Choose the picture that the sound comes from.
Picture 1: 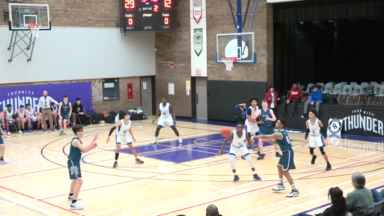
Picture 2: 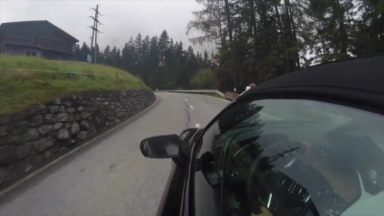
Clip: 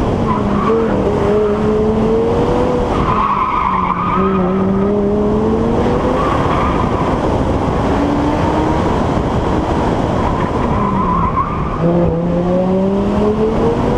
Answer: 2